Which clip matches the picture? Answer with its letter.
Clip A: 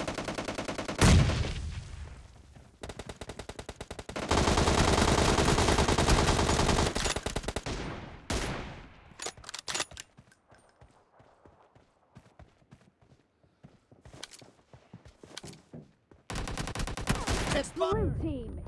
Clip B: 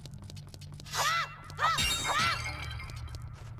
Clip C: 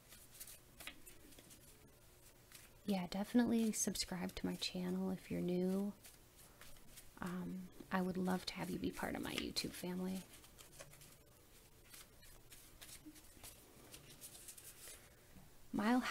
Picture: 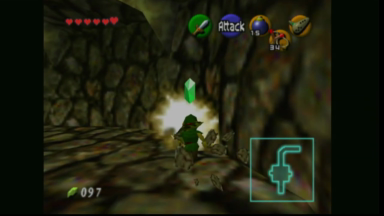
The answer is B